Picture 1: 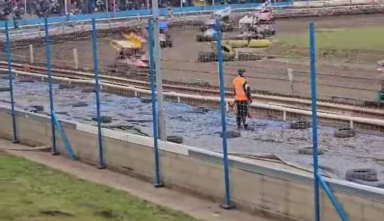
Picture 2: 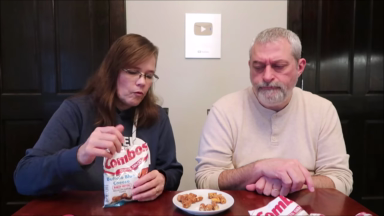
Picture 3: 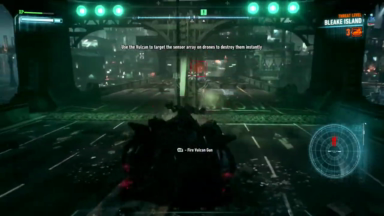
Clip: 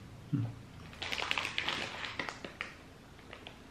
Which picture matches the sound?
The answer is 2